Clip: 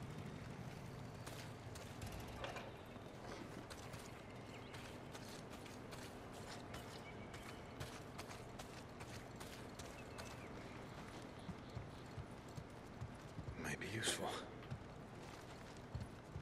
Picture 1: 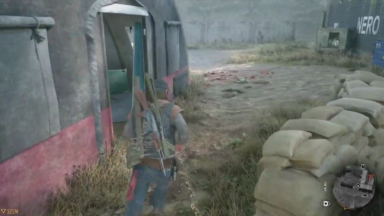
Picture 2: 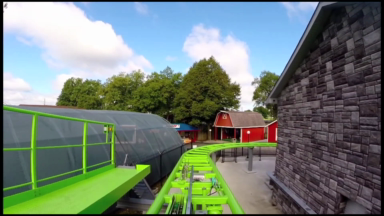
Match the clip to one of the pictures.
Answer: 1